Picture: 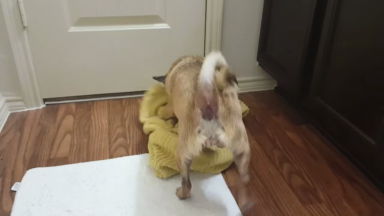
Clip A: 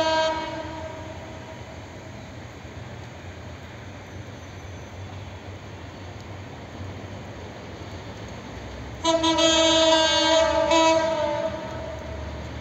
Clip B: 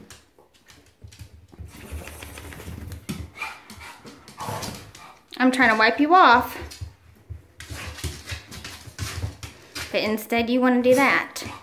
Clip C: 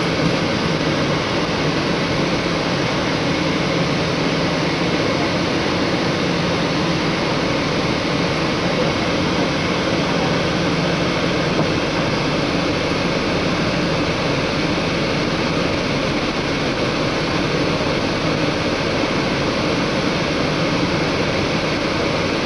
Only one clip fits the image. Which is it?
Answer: B